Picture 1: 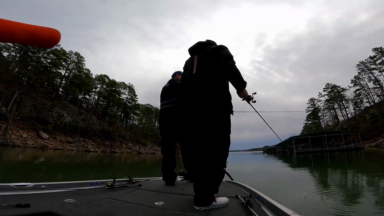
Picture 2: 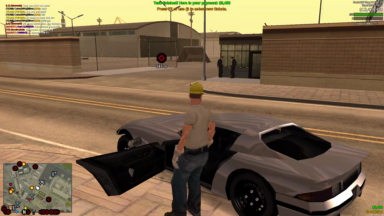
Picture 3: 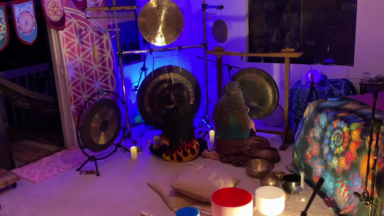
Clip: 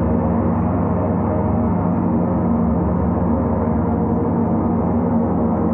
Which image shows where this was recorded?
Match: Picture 3